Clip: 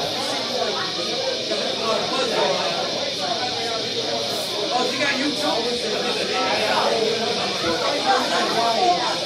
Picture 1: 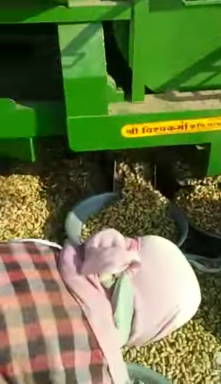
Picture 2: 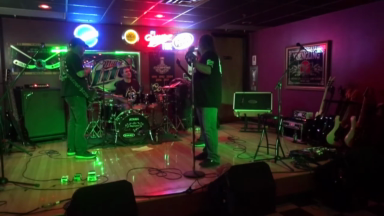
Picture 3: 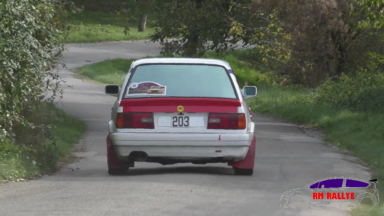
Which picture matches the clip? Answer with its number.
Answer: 2